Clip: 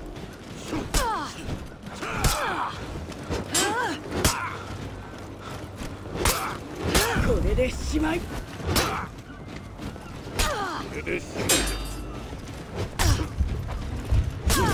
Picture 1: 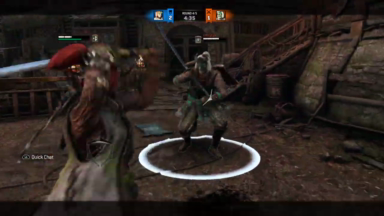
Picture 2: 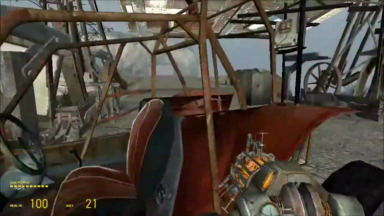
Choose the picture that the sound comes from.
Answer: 1